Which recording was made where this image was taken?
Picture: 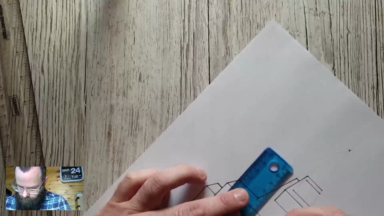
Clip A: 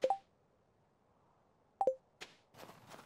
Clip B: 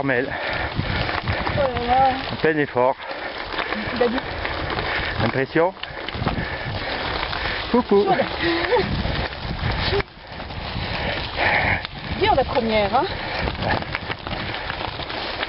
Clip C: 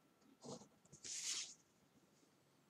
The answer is C